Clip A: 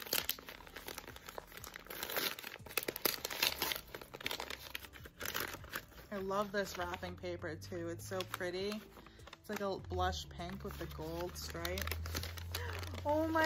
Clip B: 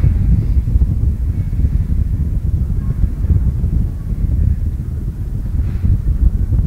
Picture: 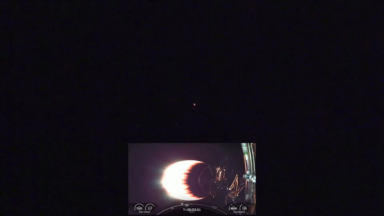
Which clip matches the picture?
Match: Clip B